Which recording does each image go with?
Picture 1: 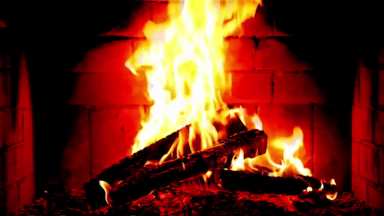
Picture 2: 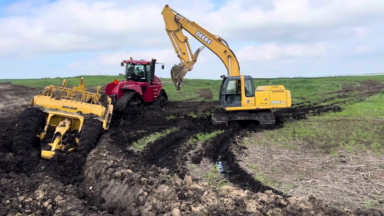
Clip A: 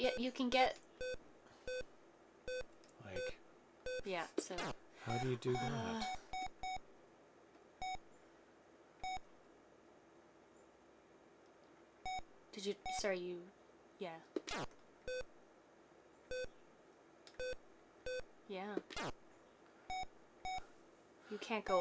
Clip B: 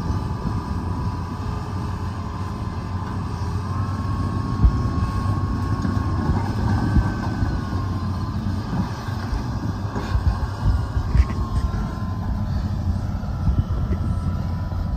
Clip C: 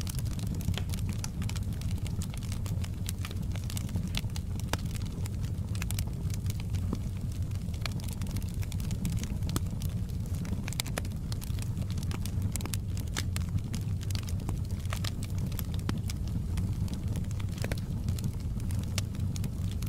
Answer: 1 C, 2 B